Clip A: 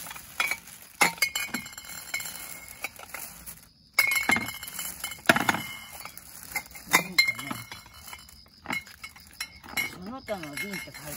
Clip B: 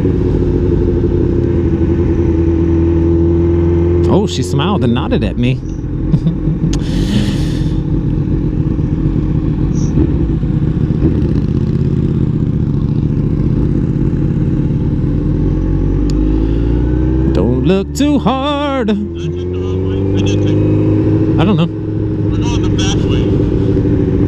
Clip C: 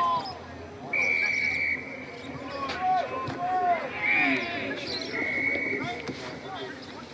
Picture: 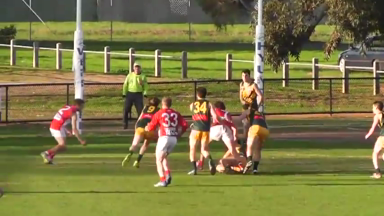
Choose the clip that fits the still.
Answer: C